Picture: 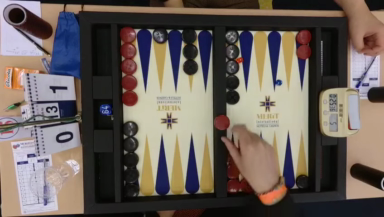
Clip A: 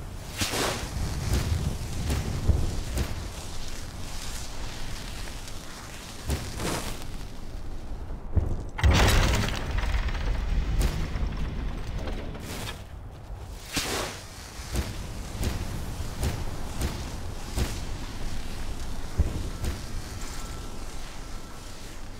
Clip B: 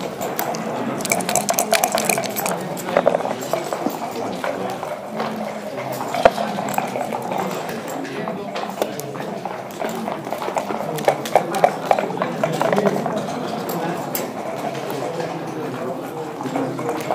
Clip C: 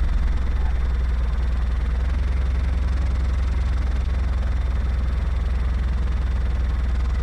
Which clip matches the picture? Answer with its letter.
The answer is B